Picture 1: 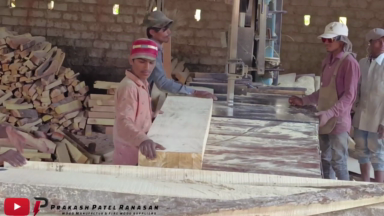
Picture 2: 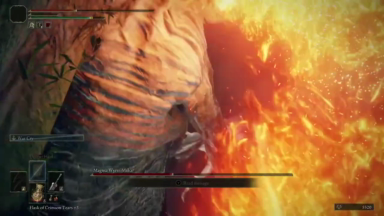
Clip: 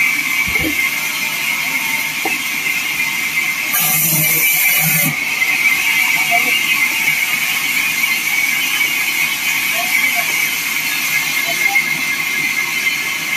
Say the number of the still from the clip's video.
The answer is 1